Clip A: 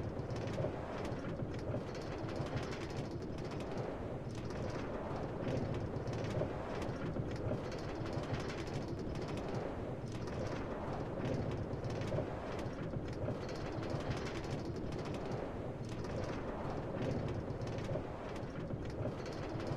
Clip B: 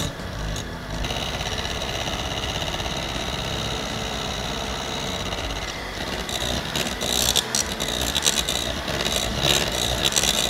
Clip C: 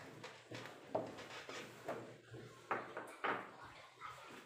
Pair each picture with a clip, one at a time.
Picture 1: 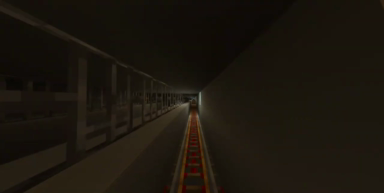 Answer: A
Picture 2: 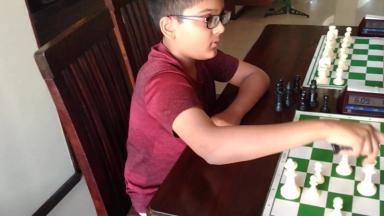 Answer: C